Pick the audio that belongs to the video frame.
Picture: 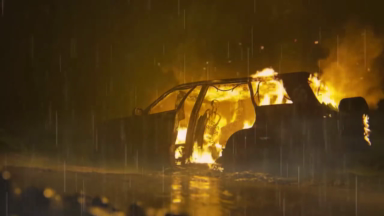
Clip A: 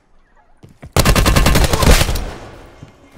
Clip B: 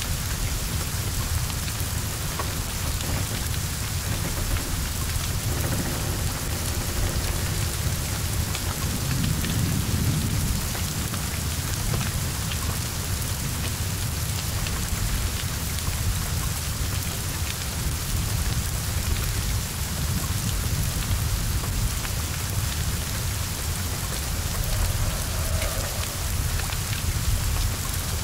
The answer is B